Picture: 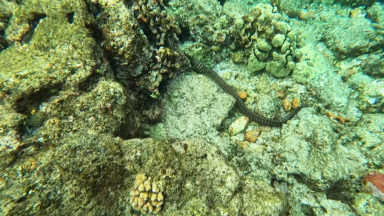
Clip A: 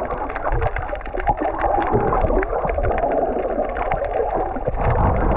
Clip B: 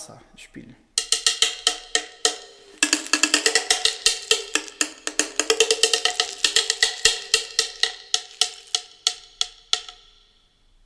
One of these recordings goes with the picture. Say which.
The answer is A